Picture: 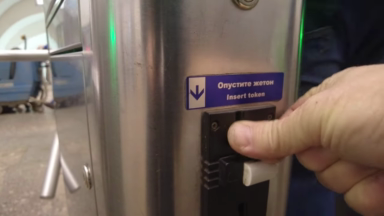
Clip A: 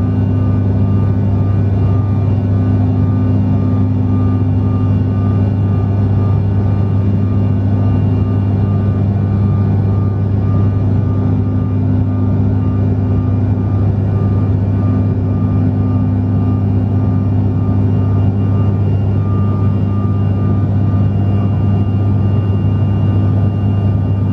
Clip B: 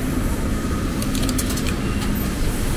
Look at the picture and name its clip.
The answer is B